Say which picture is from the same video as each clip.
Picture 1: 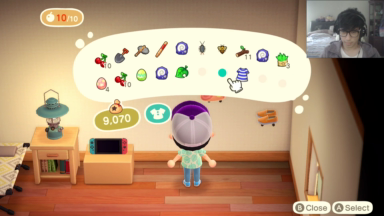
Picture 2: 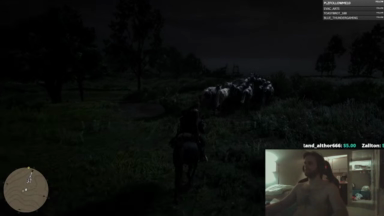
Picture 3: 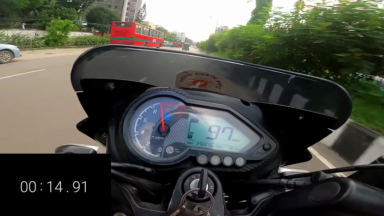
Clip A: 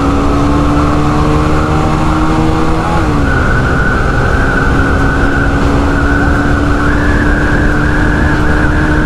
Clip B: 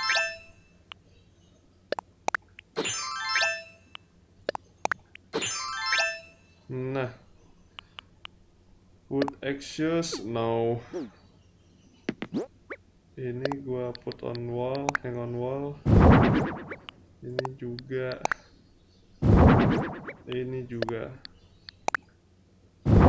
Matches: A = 3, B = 1